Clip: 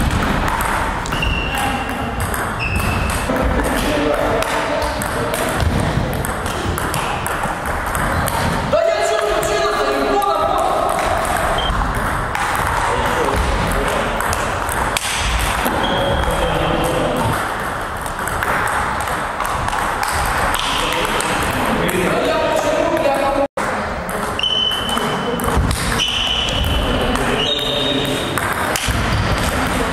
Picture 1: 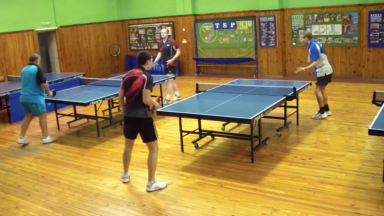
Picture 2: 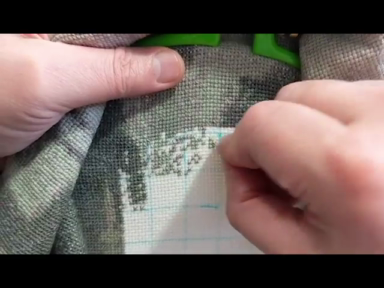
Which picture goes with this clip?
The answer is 1